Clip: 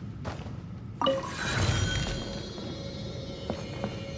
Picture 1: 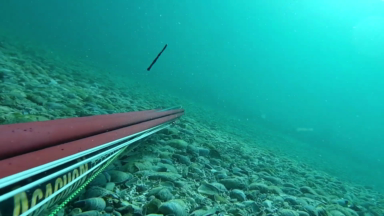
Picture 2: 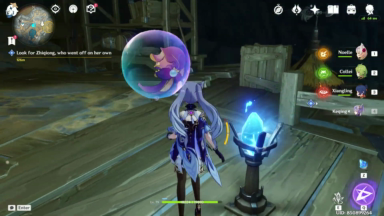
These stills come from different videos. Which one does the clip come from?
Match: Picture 2